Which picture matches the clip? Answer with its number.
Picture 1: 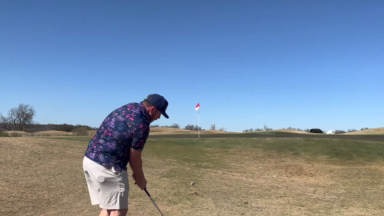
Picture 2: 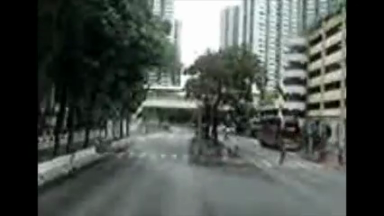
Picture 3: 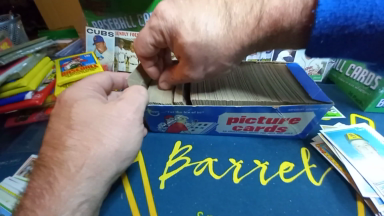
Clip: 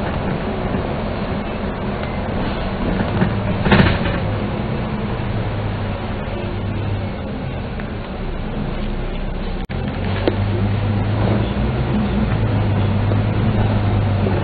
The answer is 2